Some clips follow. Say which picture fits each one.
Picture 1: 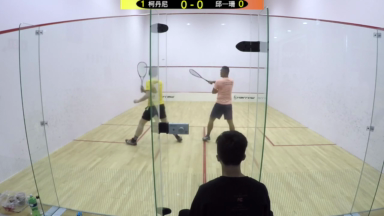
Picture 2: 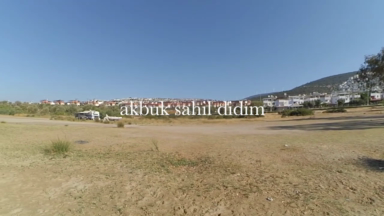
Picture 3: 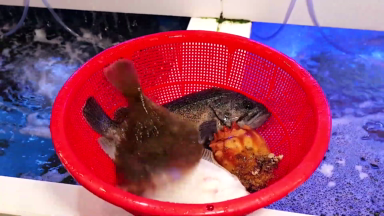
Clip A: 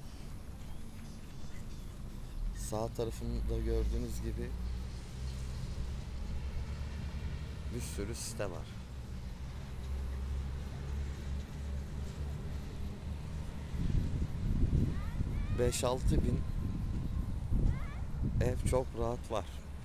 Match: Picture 2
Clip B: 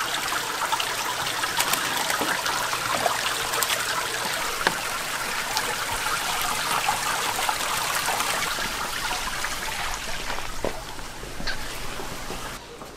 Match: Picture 3